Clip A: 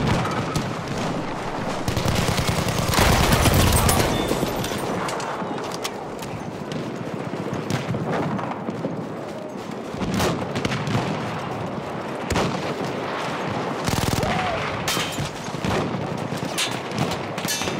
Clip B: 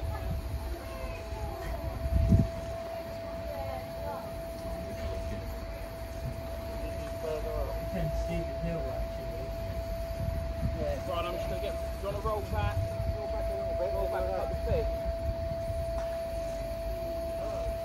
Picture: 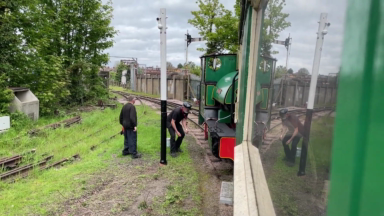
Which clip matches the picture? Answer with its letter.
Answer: B